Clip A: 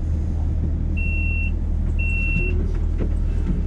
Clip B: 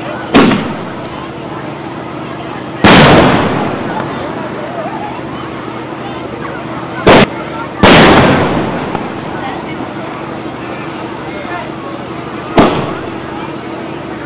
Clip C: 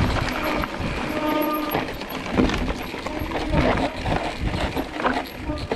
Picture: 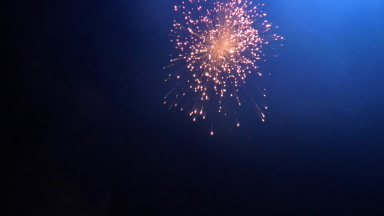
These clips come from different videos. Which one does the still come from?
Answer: B